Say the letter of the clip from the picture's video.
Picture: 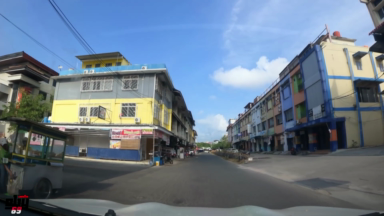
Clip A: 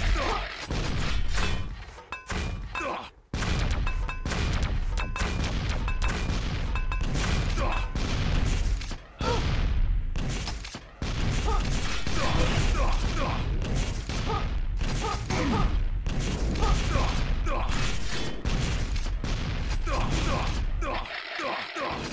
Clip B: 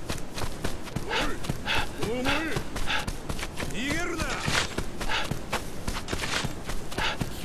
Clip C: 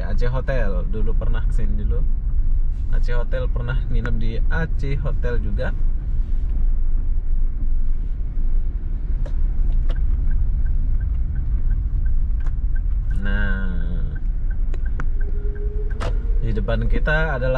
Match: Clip C